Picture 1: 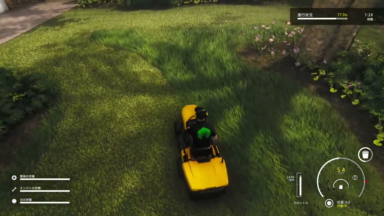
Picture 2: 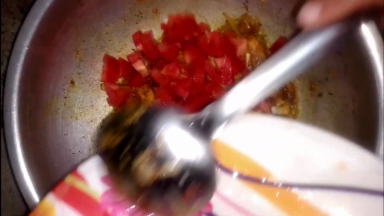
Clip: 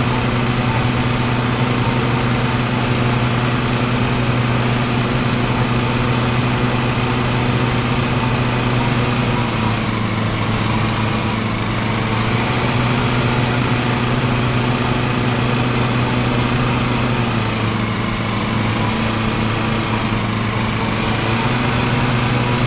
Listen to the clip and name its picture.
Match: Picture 1